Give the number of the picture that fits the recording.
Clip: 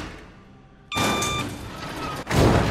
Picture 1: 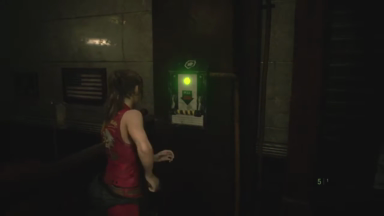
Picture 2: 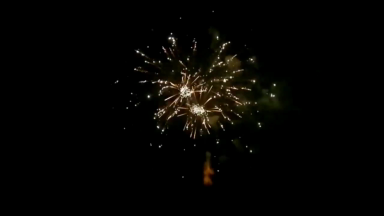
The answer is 1